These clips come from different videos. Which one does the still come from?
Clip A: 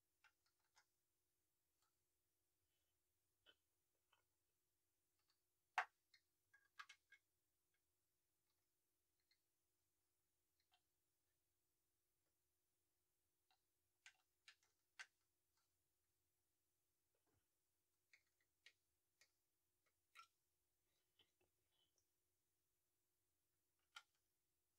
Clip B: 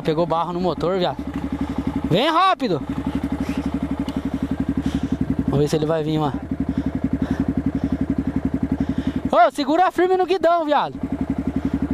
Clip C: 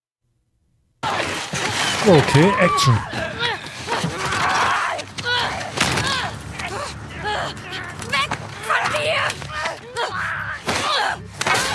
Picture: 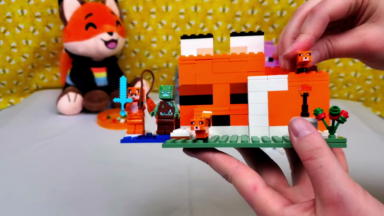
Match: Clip A